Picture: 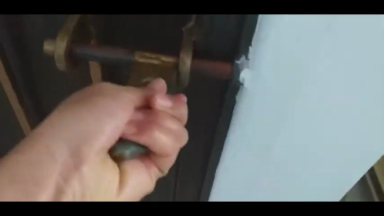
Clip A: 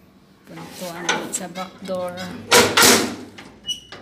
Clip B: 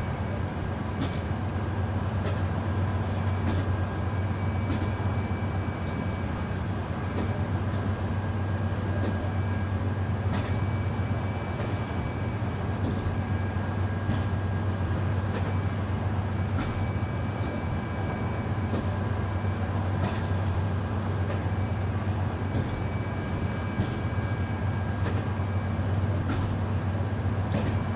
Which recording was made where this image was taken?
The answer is A